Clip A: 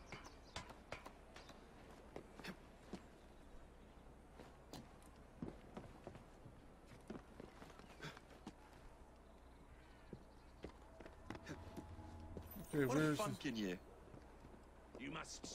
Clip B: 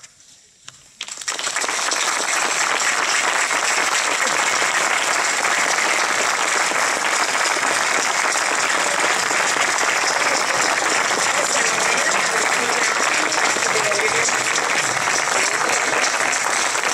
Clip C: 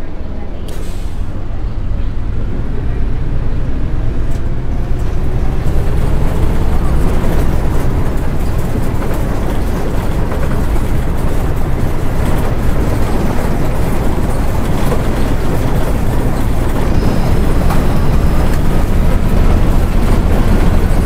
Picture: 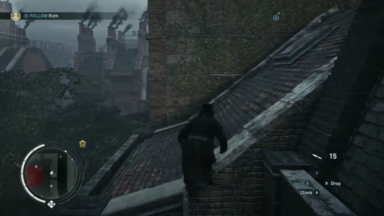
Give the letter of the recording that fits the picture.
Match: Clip A